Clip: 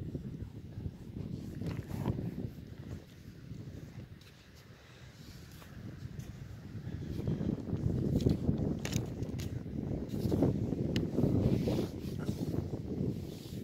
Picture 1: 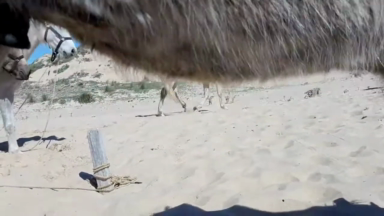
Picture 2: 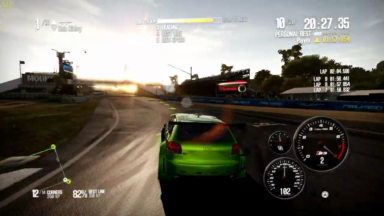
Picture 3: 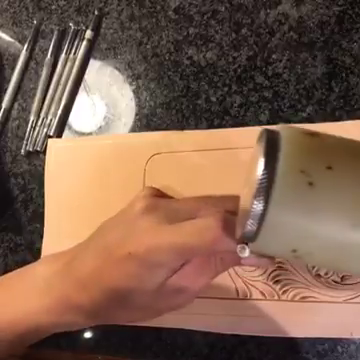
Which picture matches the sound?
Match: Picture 1